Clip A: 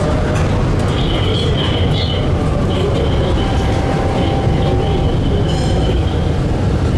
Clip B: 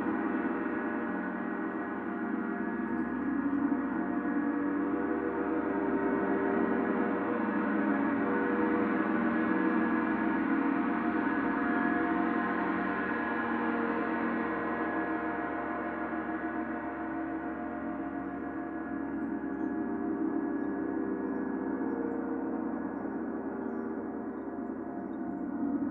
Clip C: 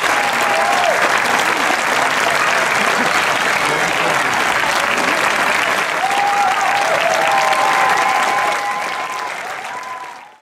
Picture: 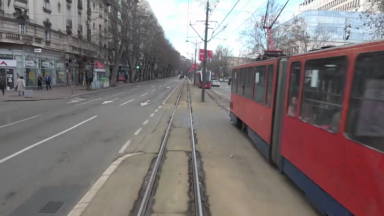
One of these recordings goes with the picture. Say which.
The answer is A